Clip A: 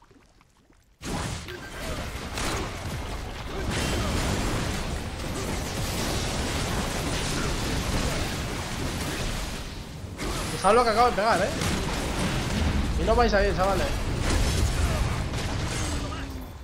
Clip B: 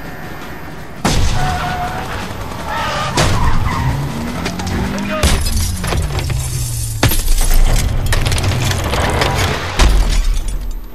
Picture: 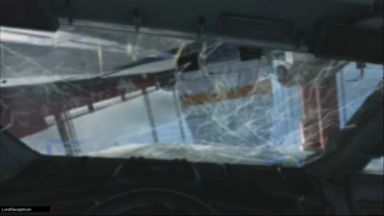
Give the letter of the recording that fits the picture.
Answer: B